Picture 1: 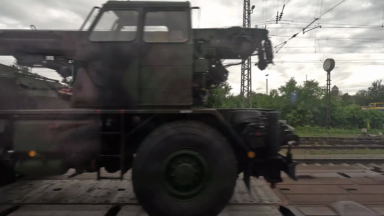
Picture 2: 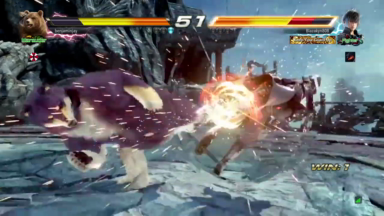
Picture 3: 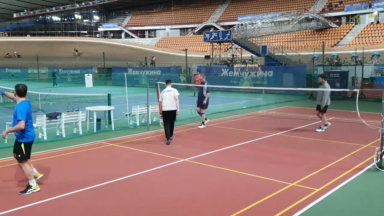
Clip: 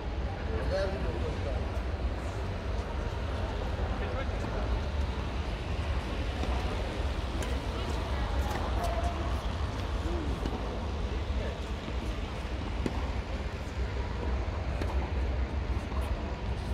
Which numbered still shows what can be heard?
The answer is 3